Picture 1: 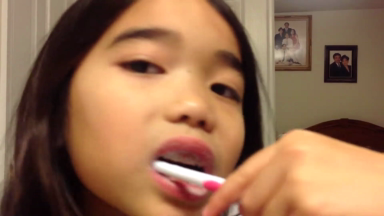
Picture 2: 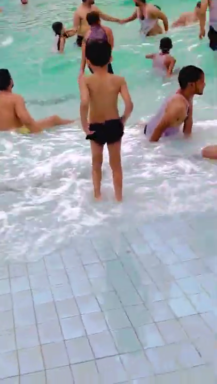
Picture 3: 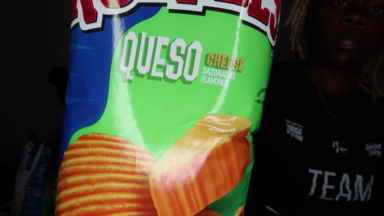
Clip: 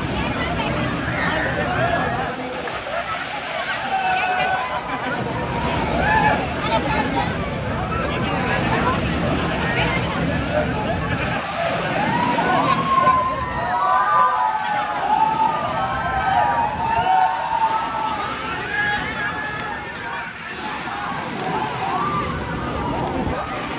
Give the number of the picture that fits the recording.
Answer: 2